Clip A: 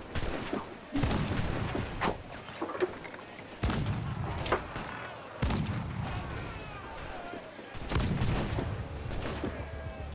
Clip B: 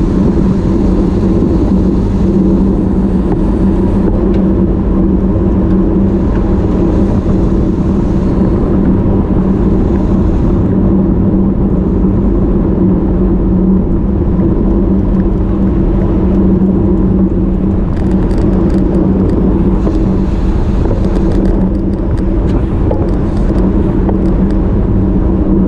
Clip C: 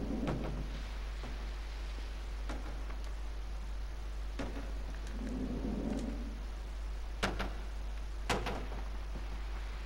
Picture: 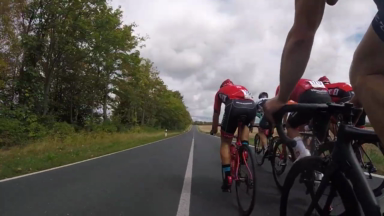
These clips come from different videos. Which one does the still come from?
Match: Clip B